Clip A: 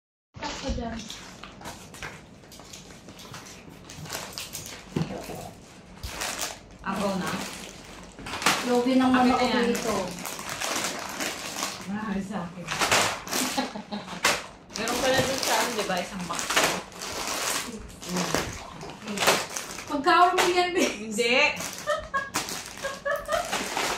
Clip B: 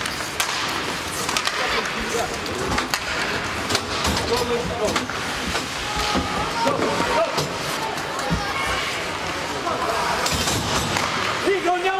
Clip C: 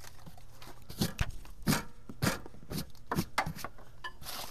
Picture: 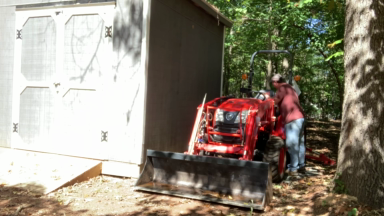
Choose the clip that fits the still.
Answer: C